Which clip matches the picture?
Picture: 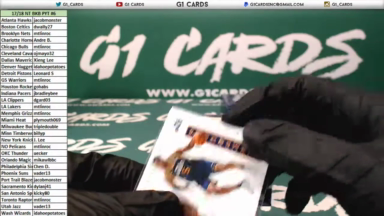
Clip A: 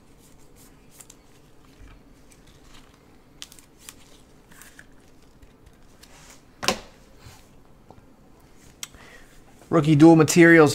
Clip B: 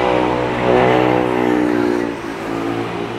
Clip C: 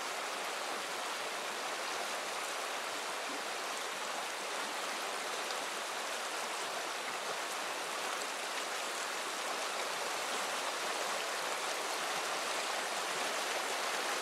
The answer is A